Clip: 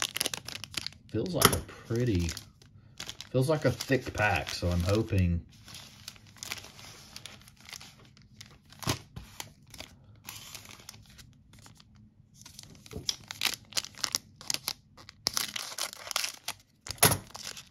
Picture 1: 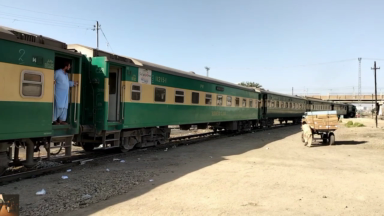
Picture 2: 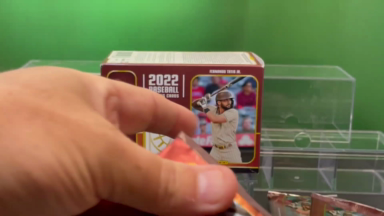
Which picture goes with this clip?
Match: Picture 2